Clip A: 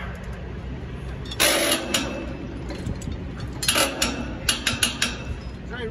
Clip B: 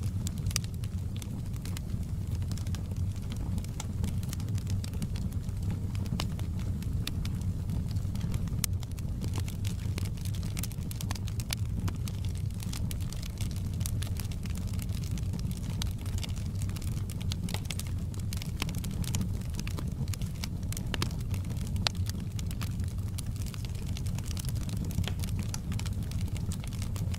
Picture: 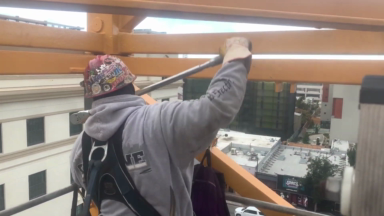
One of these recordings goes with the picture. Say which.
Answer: A